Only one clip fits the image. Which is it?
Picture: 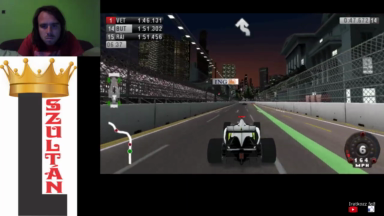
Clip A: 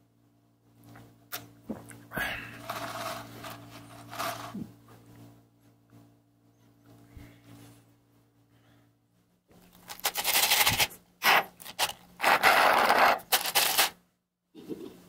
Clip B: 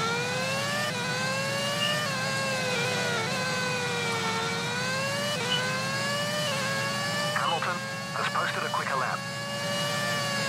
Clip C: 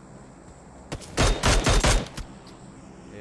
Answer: B